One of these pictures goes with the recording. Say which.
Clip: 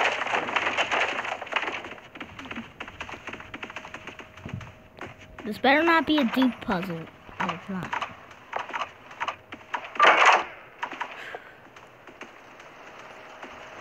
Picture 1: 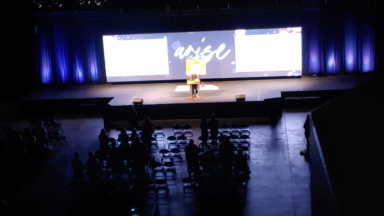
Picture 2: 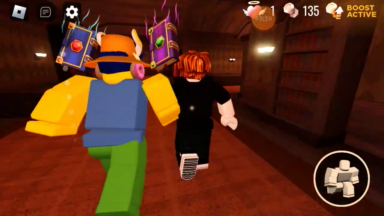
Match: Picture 2